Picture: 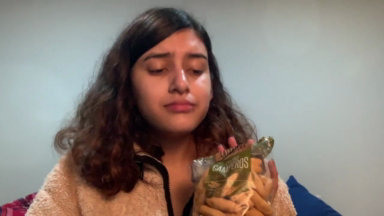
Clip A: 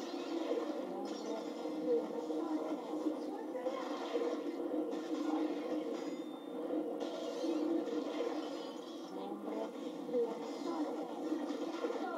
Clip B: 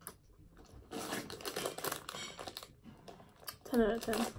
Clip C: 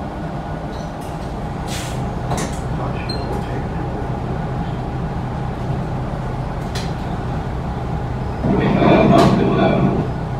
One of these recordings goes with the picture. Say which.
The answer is B